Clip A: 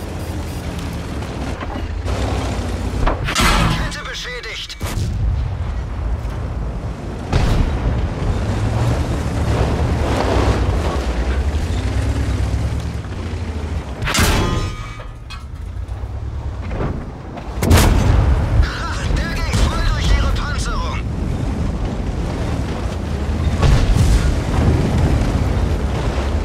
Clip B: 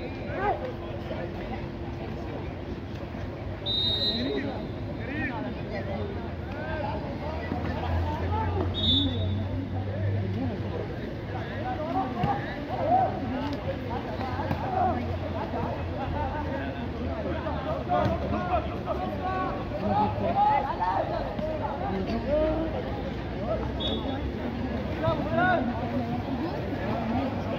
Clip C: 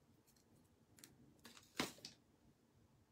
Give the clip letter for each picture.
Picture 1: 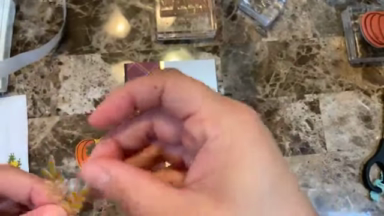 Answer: C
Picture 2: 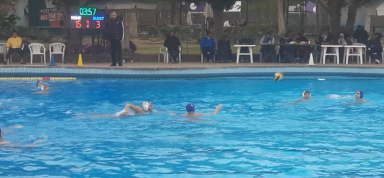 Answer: B